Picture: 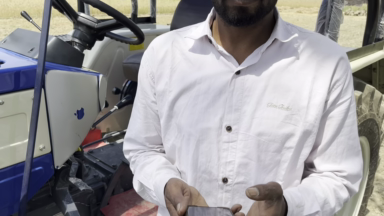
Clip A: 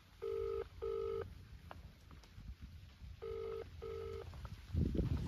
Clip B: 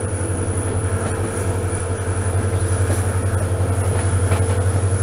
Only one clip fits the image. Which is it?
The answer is A